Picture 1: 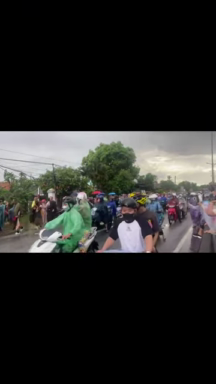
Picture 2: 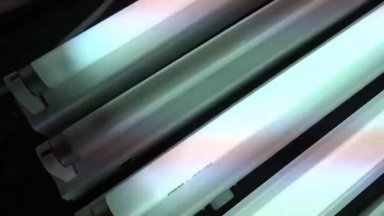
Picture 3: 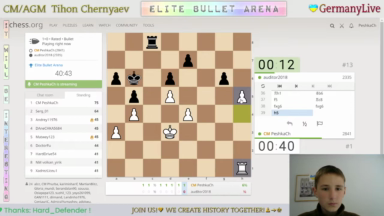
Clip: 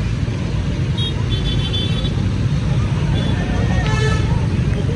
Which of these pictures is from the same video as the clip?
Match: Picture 1